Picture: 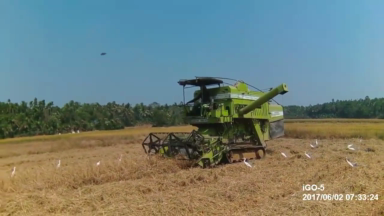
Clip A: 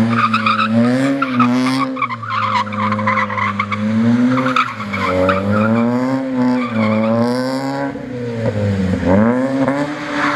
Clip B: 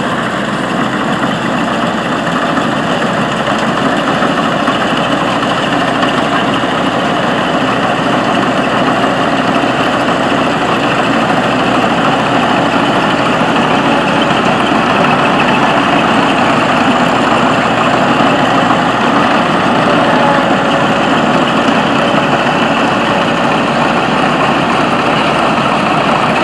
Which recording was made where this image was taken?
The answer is B